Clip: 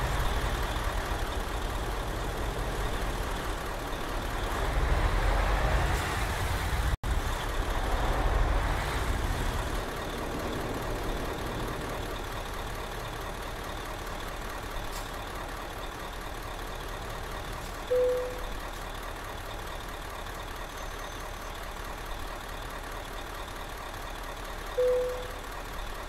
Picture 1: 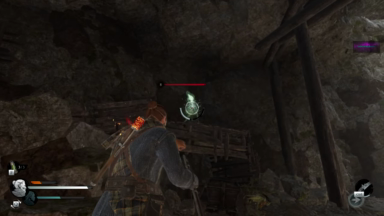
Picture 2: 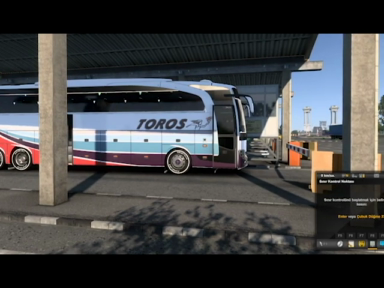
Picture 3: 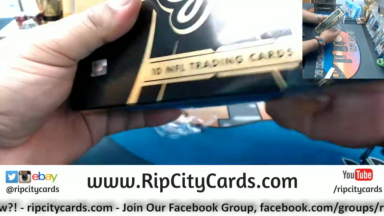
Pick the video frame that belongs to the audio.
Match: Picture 2